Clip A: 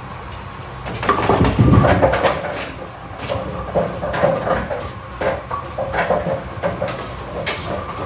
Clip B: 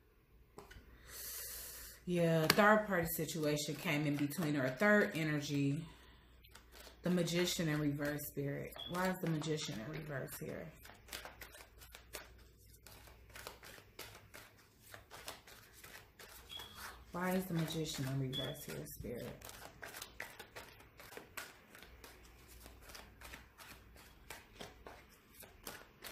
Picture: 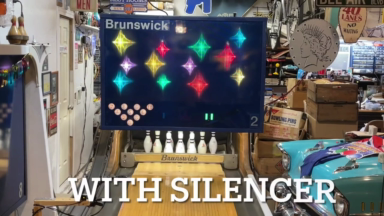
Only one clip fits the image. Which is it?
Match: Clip A